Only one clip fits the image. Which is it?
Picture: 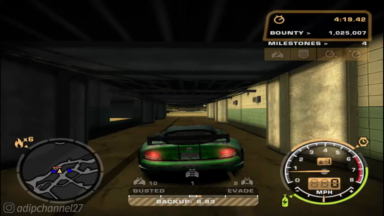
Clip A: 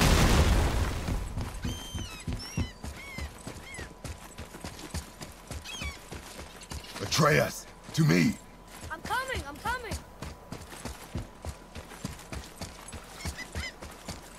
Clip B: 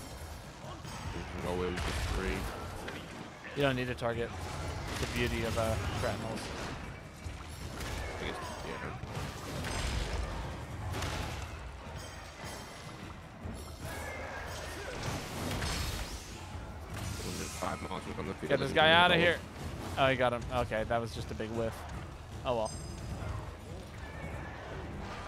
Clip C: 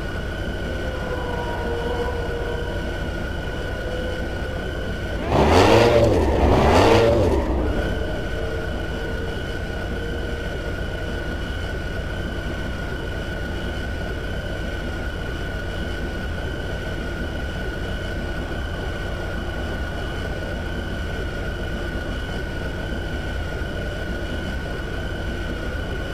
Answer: C